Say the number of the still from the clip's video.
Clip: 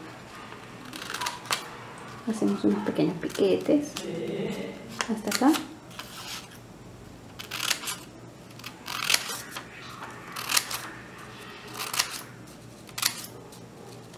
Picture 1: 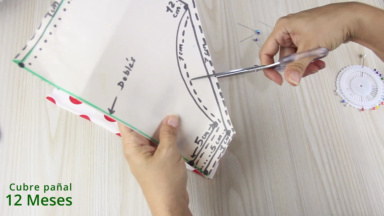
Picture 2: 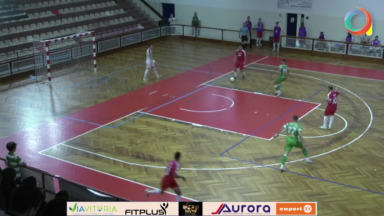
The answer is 1